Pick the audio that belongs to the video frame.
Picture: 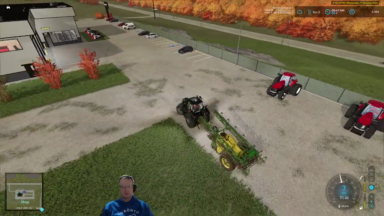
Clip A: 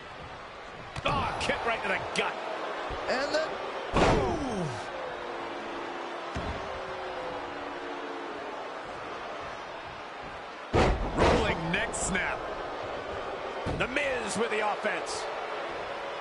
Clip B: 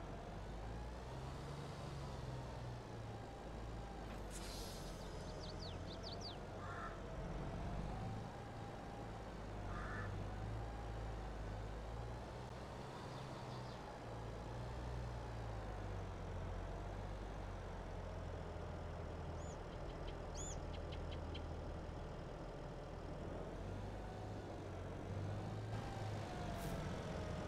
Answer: B